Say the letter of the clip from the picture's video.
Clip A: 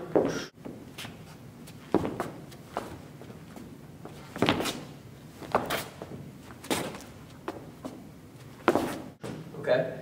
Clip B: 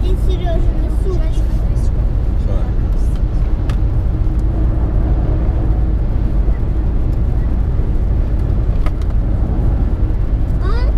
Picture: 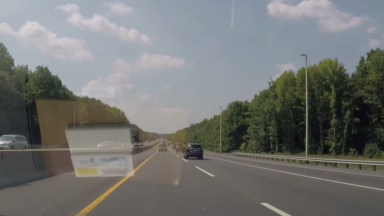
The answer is B